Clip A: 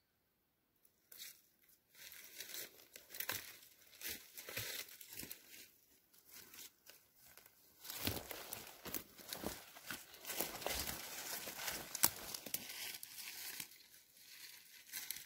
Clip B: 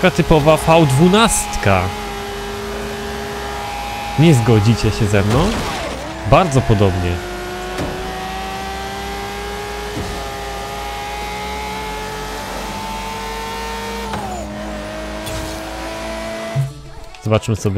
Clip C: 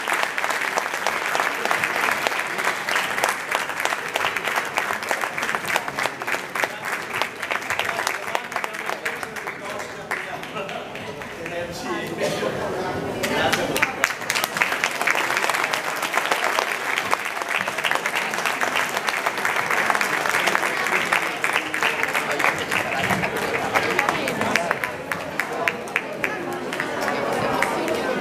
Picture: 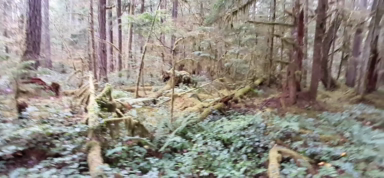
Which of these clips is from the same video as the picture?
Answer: A